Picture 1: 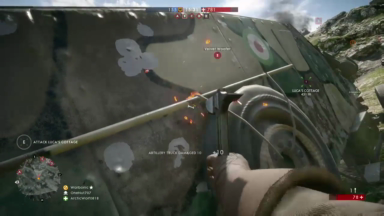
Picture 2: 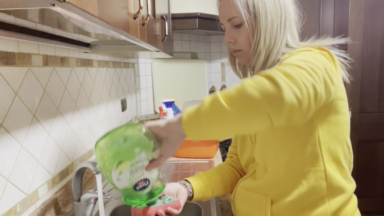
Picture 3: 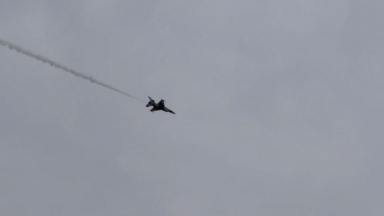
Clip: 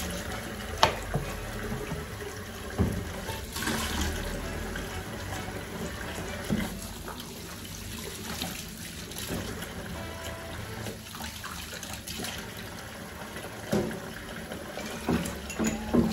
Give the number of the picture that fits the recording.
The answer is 2